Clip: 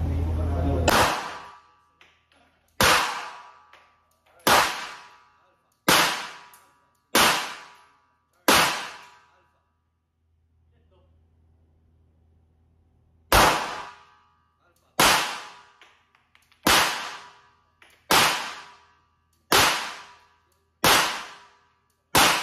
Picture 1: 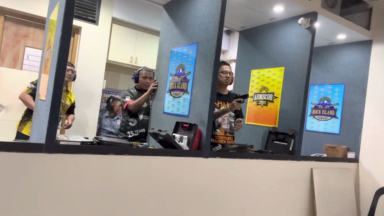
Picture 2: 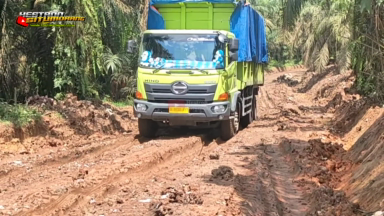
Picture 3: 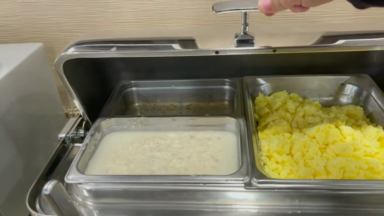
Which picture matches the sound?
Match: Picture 1